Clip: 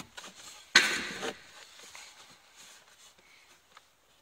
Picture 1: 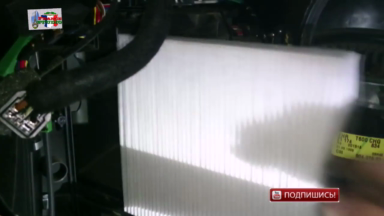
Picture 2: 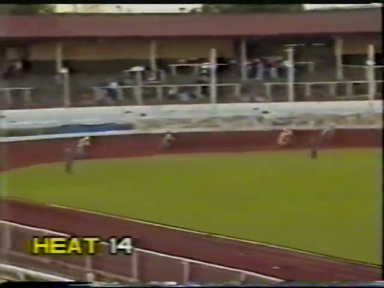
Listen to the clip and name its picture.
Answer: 1